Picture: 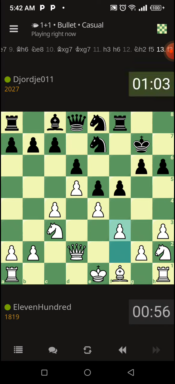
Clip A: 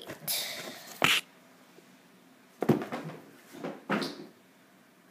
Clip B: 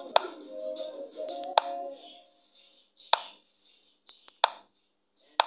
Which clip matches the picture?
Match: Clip B